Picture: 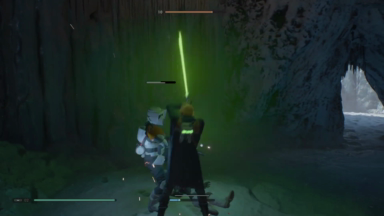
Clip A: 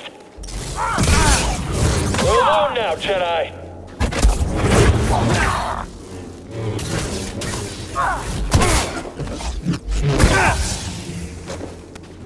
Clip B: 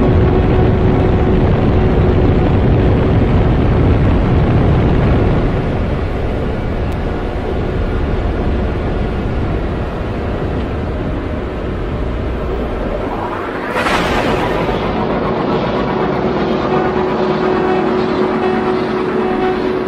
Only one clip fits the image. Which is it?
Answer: A